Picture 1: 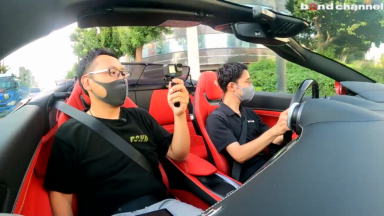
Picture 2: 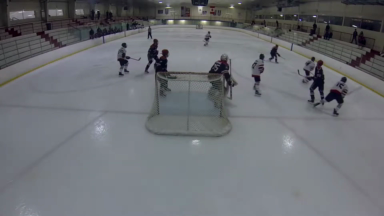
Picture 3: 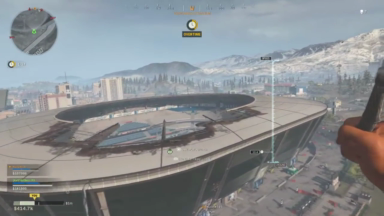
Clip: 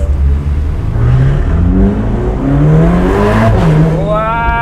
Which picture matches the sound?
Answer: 1